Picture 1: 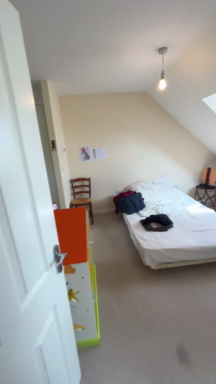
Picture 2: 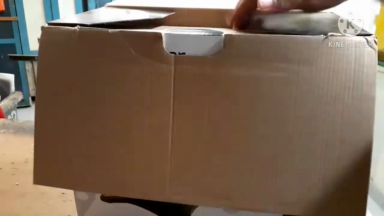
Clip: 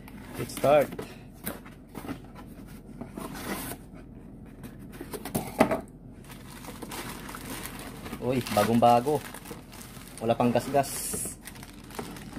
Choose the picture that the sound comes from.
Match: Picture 2